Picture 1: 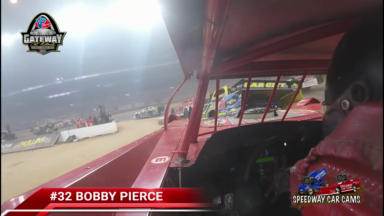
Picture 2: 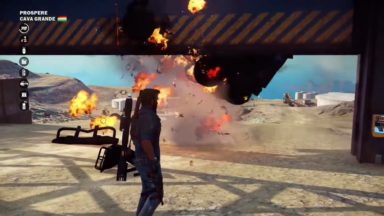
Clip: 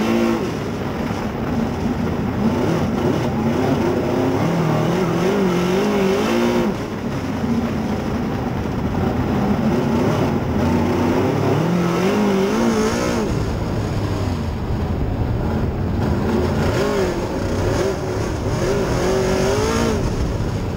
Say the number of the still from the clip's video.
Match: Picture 1